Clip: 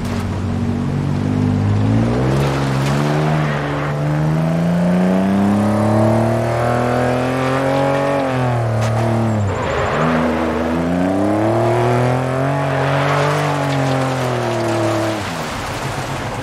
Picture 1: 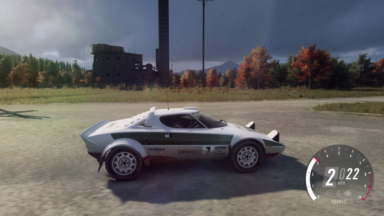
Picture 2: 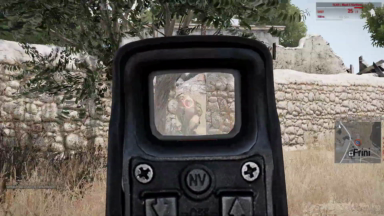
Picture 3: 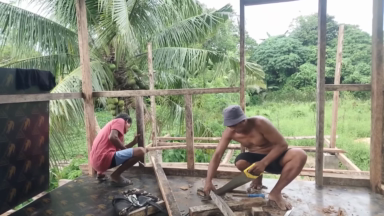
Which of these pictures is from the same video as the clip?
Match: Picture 1